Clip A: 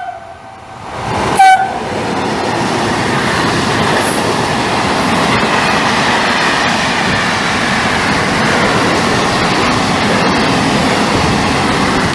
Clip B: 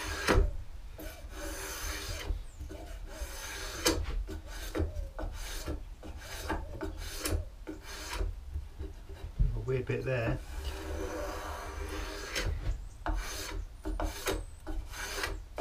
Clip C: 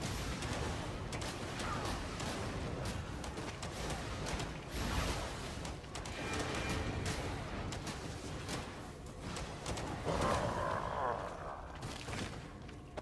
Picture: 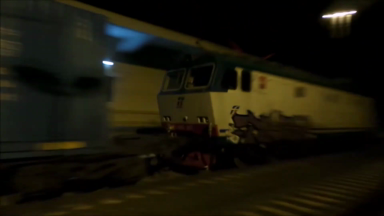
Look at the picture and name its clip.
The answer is A